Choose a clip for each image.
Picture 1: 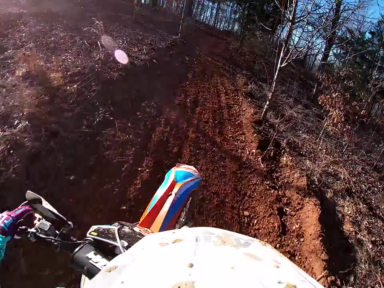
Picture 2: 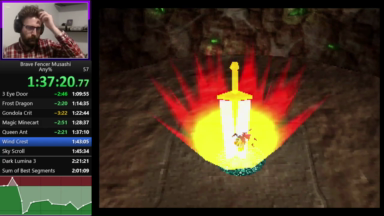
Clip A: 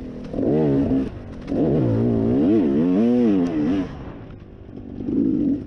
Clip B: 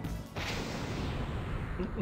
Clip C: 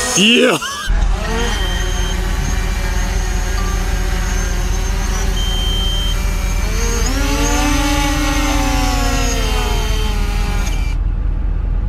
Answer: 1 A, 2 B